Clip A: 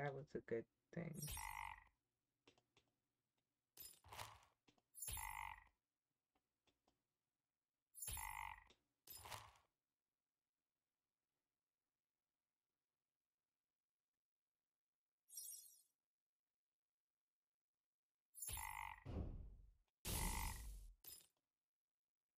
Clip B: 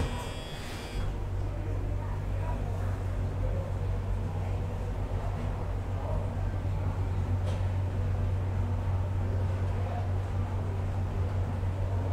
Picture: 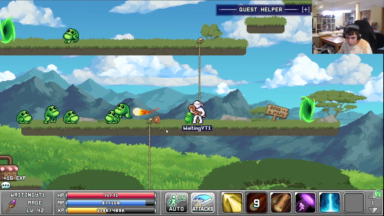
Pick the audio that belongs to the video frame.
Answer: A